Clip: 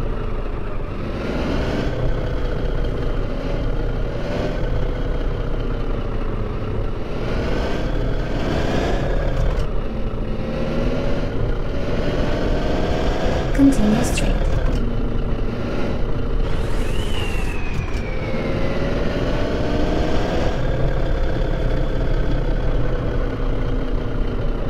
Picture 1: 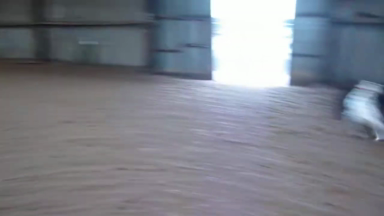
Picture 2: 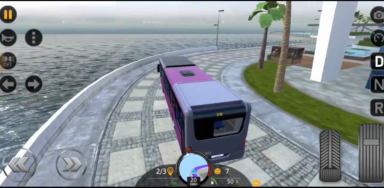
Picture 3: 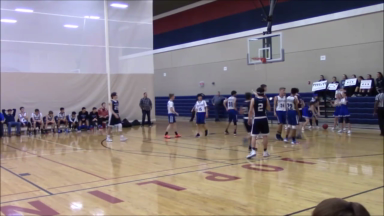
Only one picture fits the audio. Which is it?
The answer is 2